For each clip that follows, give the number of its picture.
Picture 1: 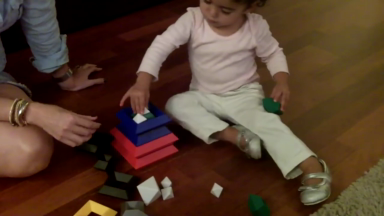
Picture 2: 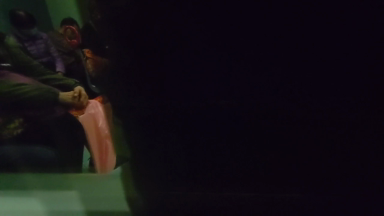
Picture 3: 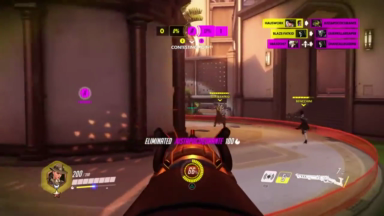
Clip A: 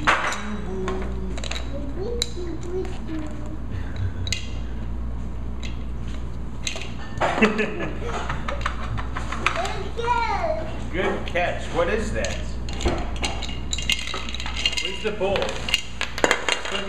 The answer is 1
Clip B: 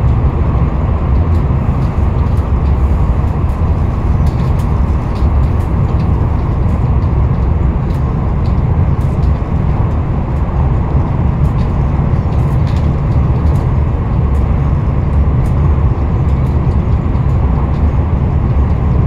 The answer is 2